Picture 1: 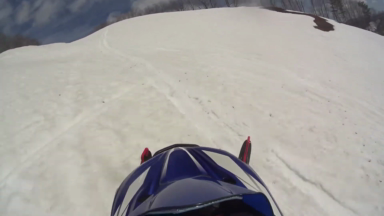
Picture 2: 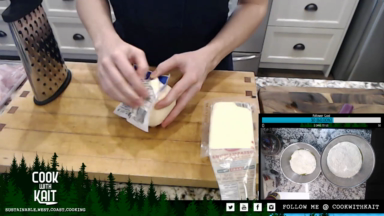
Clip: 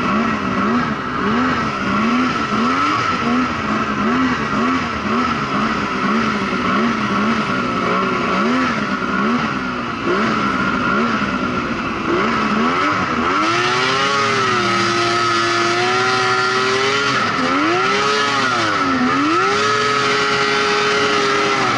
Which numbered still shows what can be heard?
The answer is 1